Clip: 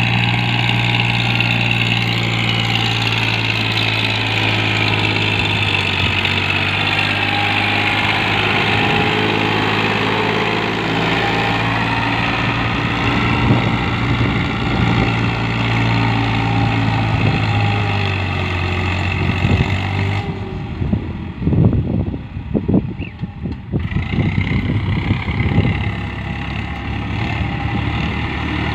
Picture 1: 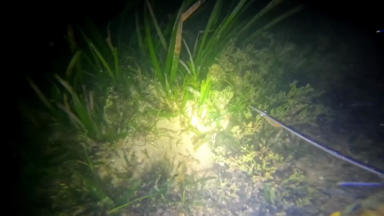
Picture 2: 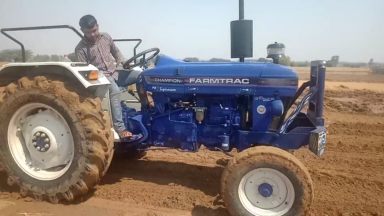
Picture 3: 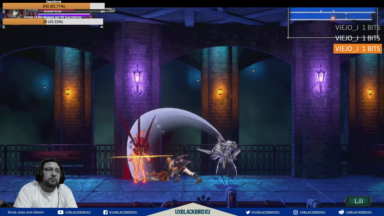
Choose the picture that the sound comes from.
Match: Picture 2